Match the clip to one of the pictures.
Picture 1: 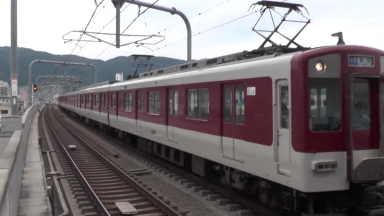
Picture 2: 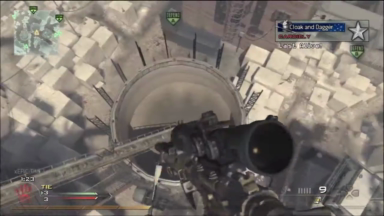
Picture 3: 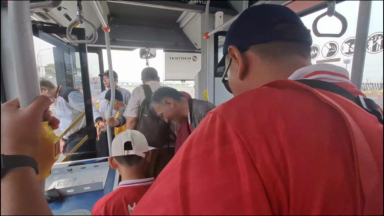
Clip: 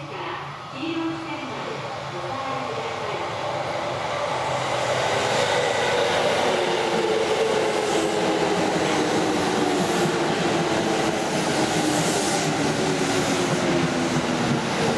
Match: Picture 1